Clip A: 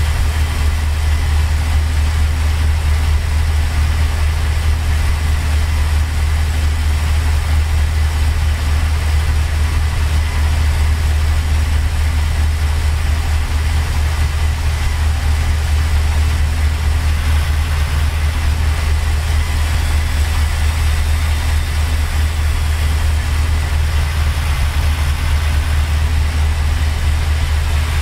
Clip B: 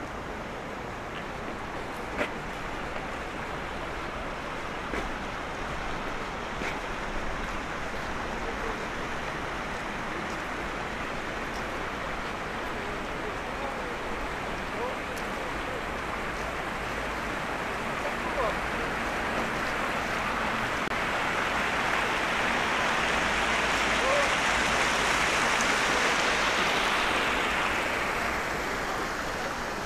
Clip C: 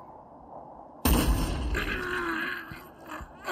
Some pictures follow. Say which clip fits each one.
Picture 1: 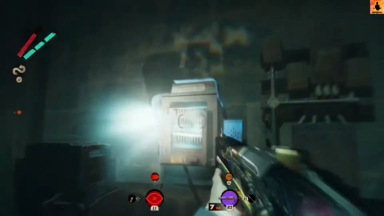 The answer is C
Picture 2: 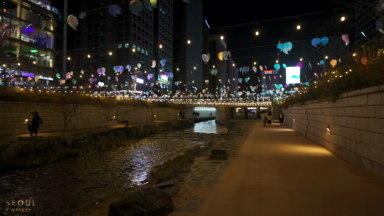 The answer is B